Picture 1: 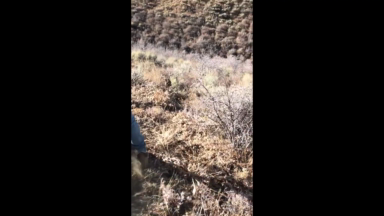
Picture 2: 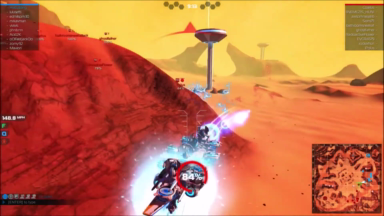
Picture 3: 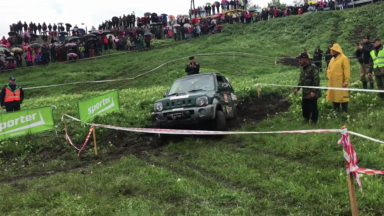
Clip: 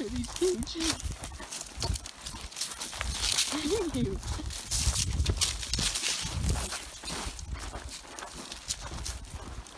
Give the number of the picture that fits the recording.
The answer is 1